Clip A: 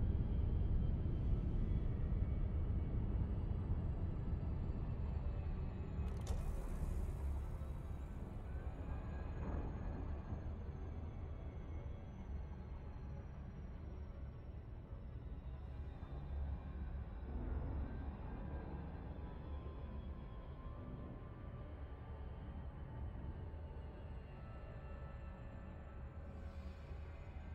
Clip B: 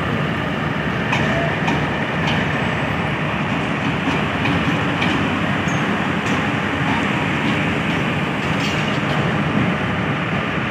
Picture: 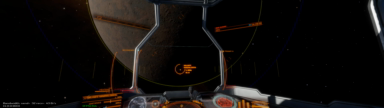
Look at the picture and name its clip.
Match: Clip A